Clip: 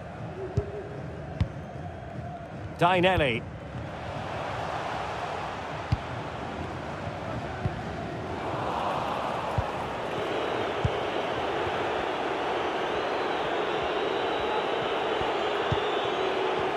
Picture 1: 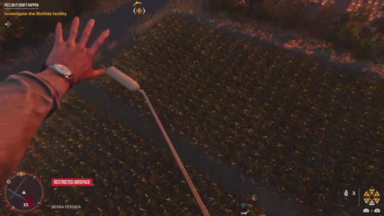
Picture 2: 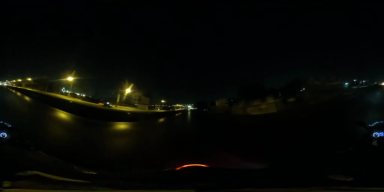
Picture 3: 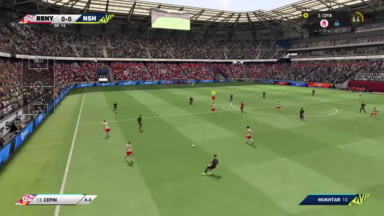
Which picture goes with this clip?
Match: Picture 3